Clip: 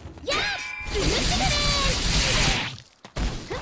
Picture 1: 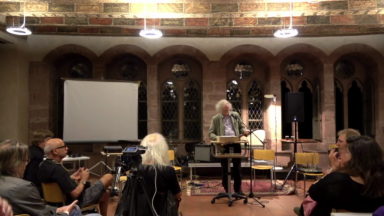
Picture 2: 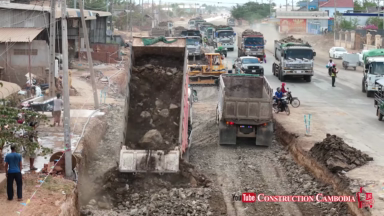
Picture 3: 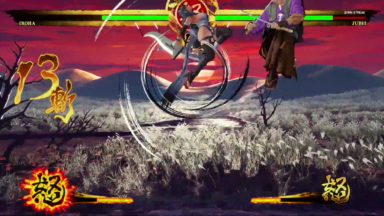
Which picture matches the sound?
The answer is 3